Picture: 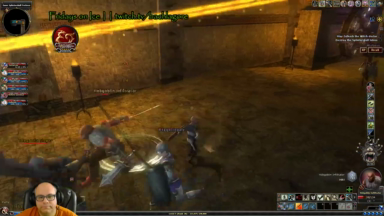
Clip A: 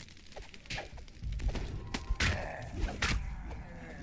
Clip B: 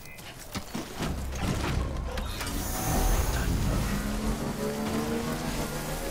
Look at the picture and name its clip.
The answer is A